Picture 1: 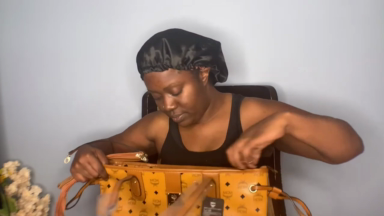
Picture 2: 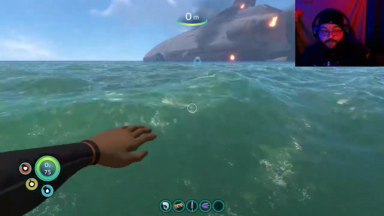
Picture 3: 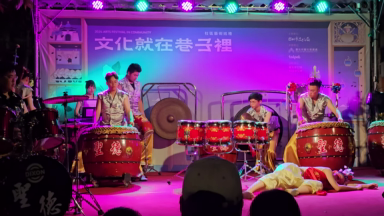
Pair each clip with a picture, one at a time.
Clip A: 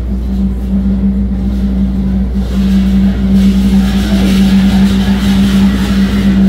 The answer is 3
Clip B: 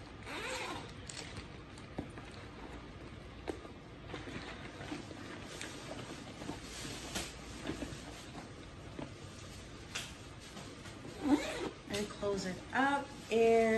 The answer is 1